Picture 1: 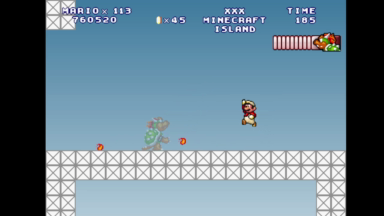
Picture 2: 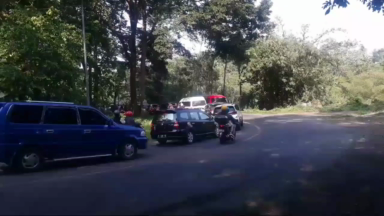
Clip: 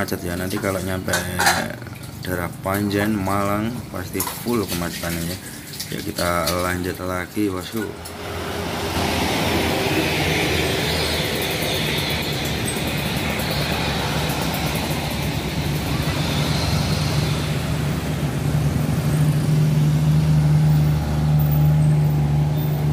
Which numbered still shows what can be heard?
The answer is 2